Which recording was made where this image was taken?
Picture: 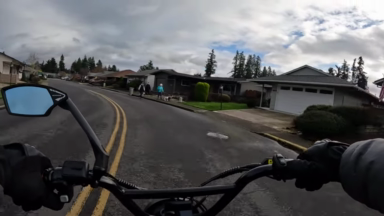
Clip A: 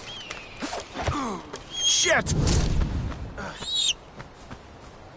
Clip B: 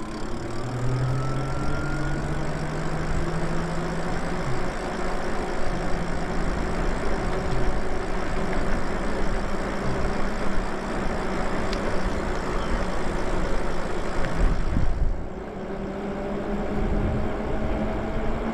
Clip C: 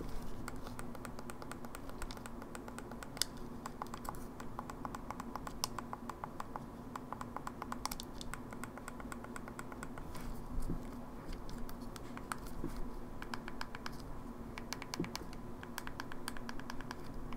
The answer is B